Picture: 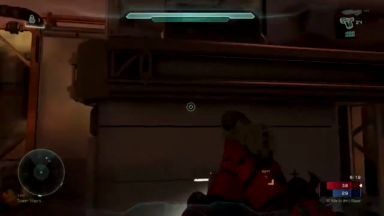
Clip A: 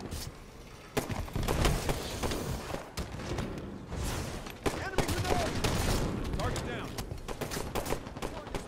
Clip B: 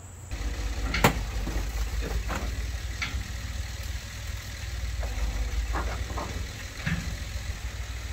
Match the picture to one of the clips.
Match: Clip A